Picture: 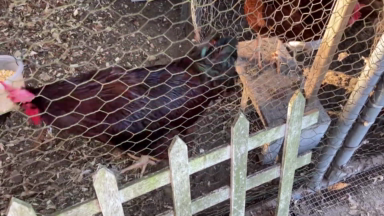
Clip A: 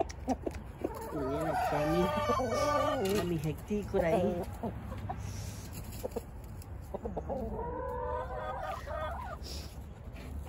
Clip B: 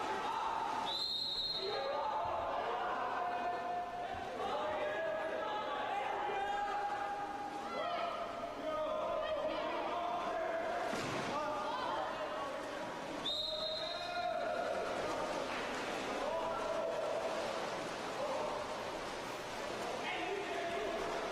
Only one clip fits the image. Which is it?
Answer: A